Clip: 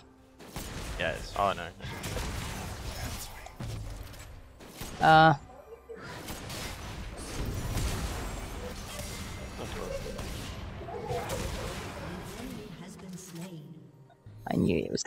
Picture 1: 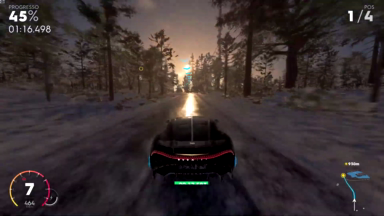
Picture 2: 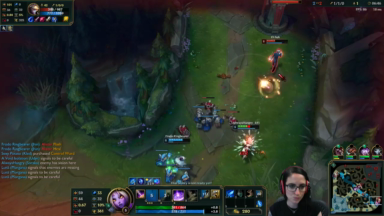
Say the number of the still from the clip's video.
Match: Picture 2